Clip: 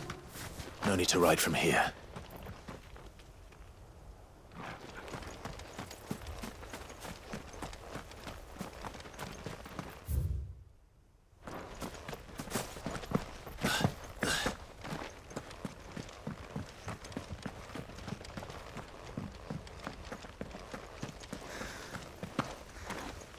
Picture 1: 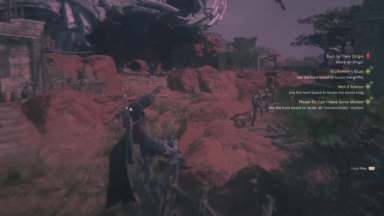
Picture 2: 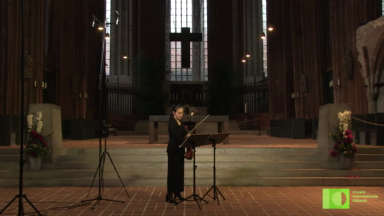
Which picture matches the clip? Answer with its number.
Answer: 1